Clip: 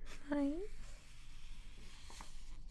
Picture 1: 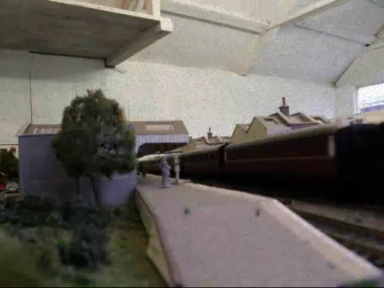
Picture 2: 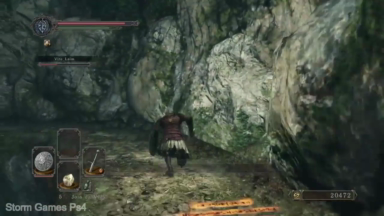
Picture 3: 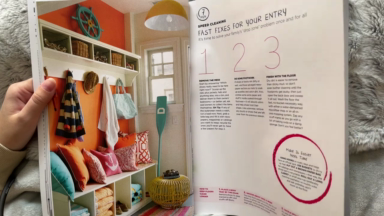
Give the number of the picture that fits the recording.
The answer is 3